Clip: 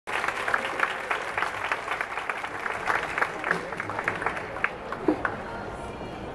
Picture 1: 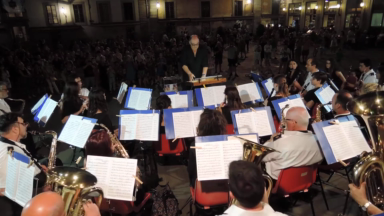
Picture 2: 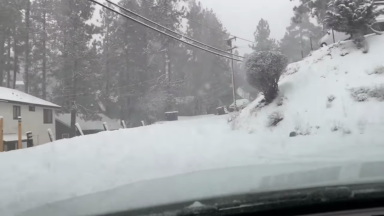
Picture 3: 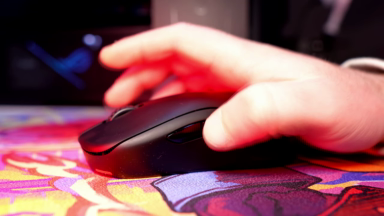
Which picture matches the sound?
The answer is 1